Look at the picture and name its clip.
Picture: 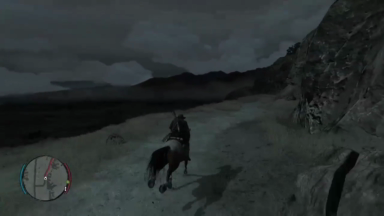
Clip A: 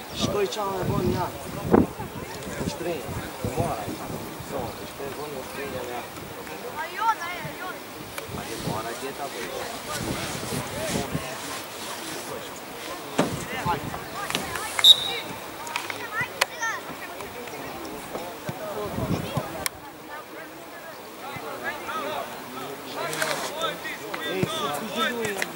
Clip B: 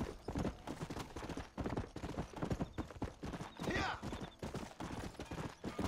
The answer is B